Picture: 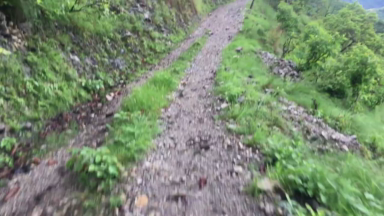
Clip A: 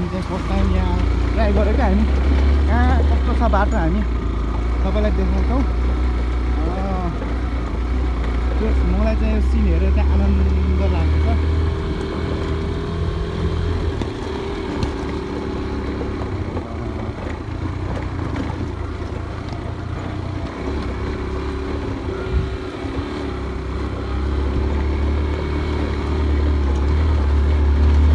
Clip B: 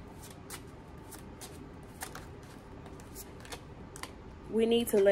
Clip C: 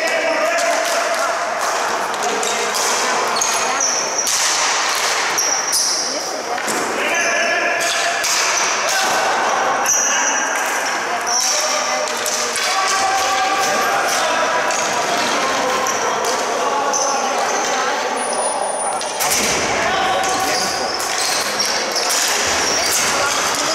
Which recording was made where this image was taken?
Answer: A